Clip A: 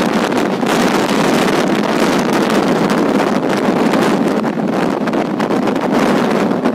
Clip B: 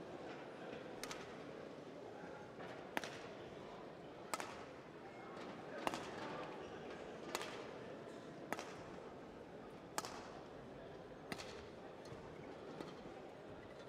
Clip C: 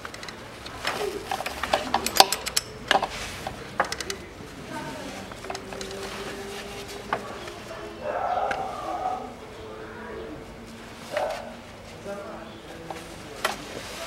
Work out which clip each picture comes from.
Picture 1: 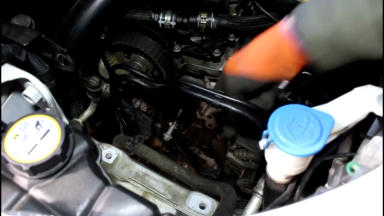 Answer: C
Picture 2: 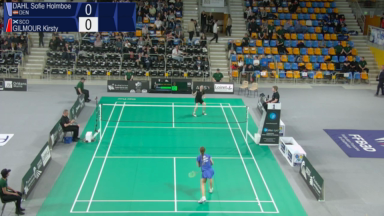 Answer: B